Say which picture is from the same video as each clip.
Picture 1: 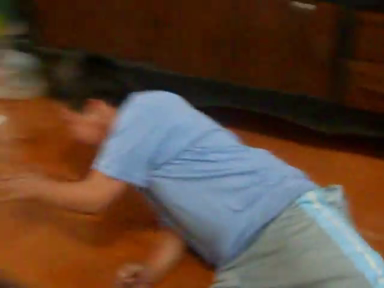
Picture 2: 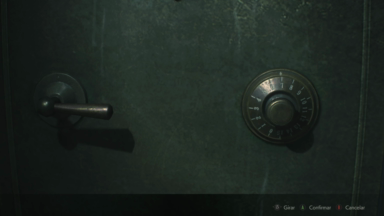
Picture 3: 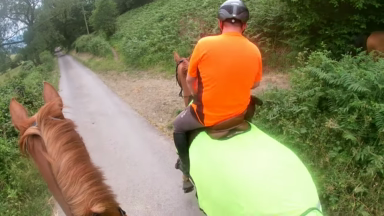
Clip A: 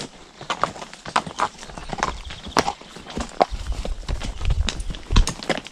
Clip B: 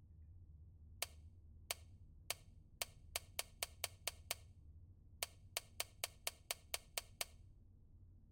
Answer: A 3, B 2